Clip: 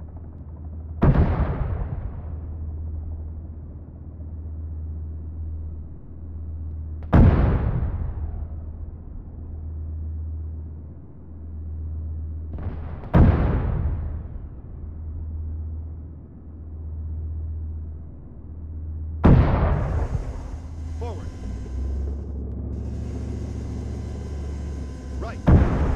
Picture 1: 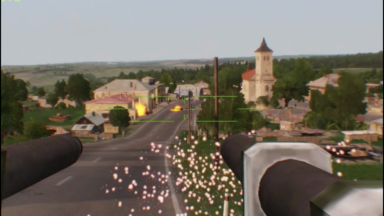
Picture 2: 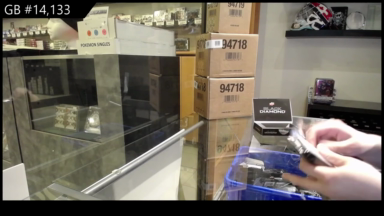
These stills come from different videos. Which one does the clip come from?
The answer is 1